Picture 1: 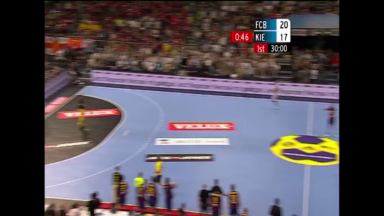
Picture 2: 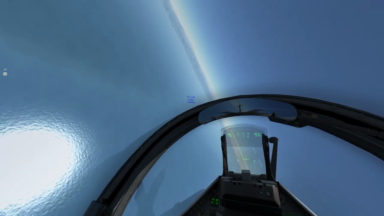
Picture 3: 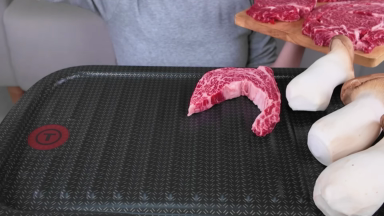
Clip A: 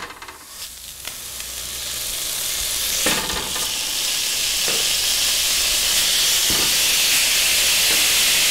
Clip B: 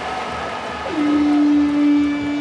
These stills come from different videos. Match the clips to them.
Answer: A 3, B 1